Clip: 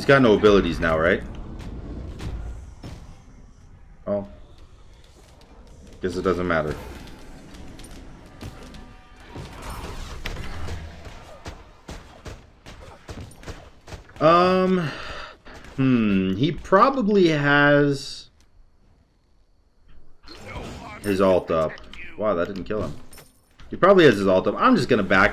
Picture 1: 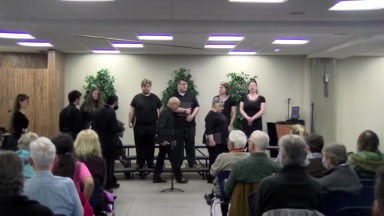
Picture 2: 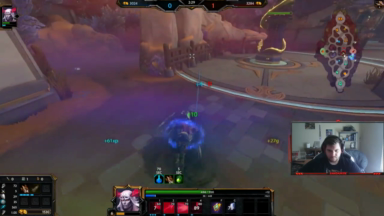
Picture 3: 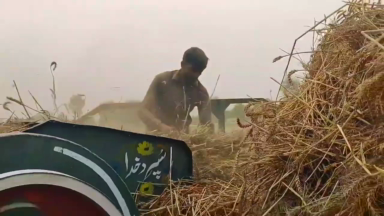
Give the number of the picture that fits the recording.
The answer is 2